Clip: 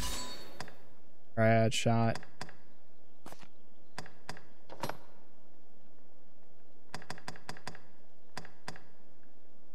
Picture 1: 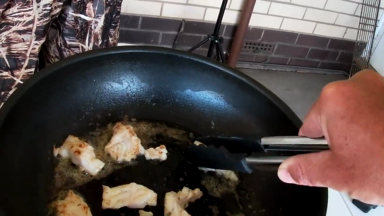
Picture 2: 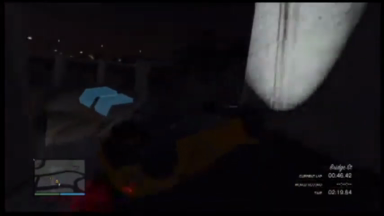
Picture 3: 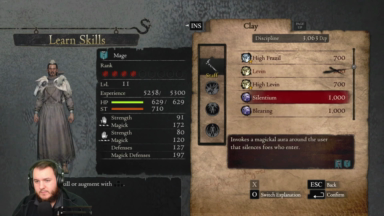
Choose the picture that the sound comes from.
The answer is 3